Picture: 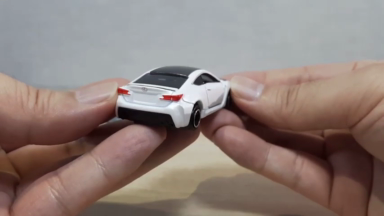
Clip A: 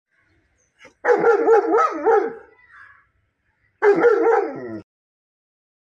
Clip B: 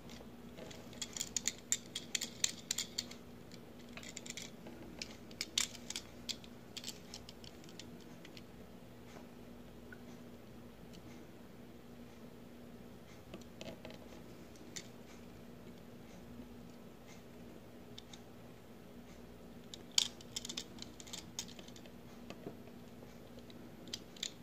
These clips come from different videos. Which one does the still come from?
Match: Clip B